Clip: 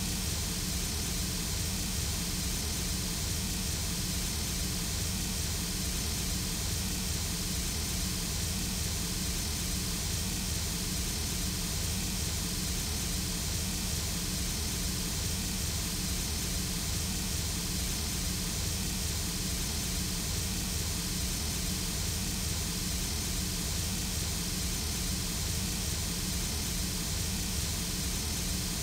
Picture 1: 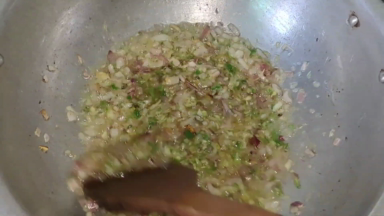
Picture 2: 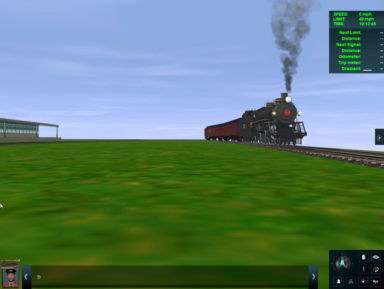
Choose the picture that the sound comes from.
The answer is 2